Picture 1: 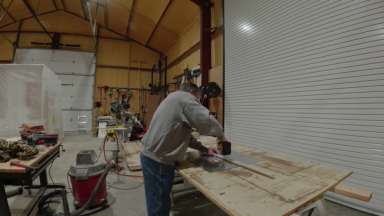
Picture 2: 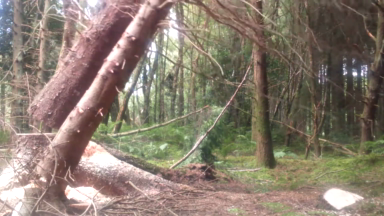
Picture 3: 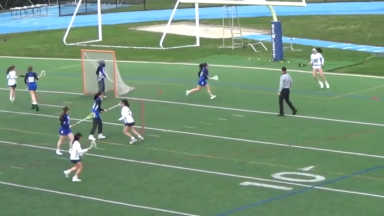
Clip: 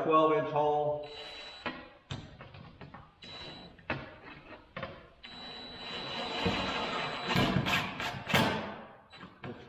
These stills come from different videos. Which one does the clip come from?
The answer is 1